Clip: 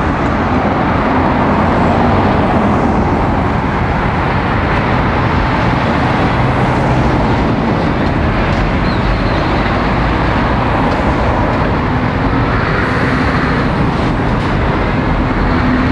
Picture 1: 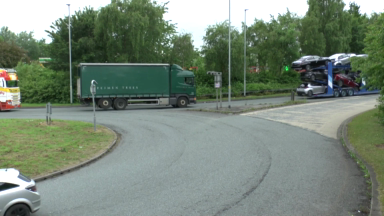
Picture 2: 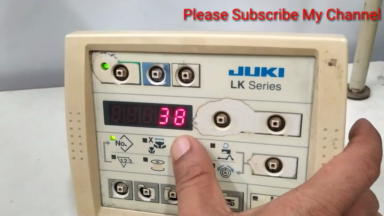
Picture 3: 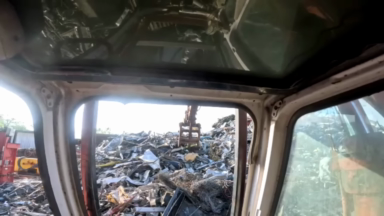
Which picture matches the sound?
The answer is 1